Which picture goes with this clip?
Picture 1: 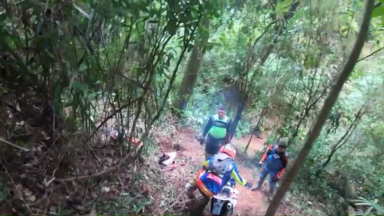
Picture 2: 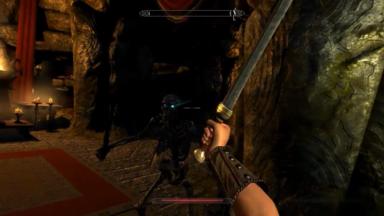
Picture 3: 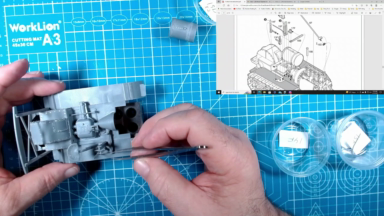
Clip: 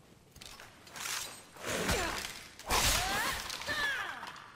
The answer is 2